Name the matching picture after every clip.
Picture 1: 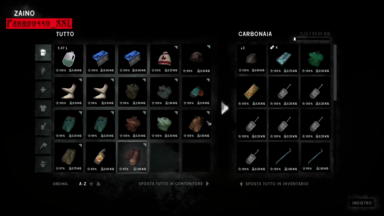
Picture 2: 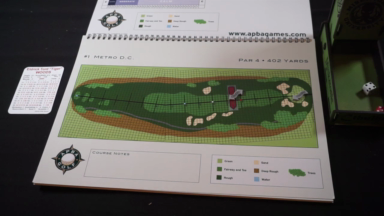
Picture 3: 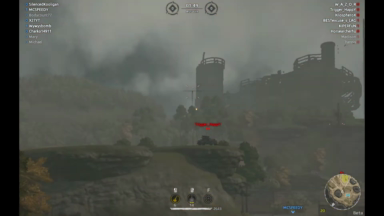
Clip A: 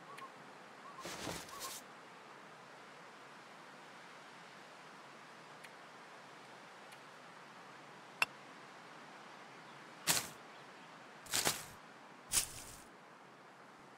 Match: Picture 1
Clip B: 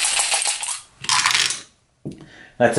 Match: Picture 2